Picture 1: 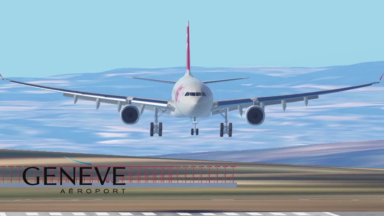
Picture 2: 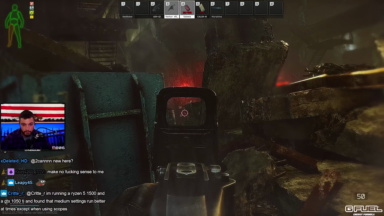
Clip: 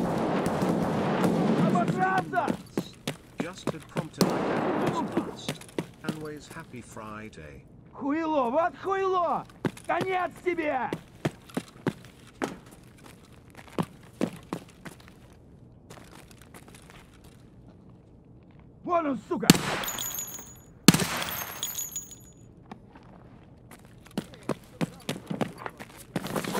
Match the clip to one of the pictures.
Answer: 2